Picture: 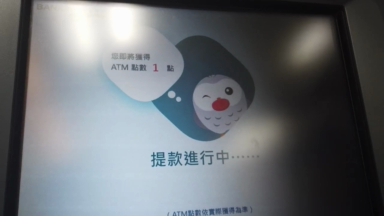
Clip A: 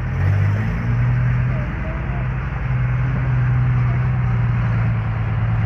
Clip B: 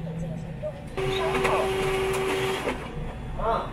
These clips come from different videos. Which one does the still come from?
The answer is B